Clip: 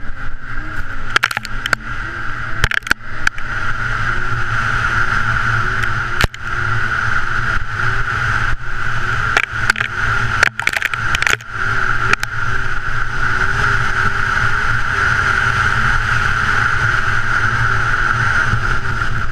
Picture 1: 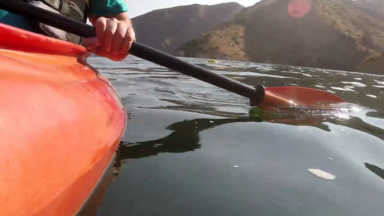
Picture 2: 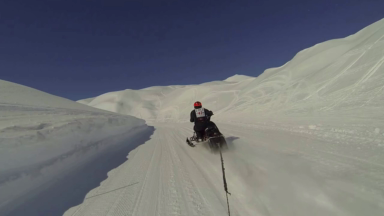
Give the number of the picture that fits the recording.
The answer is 2